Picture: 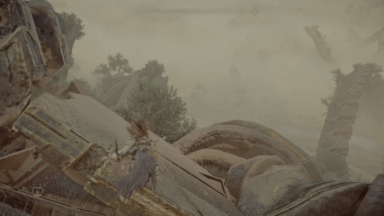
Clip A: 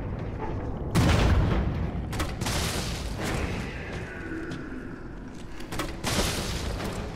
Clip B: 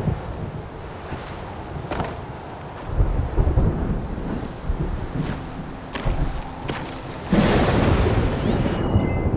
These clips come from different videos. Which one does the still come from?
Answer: B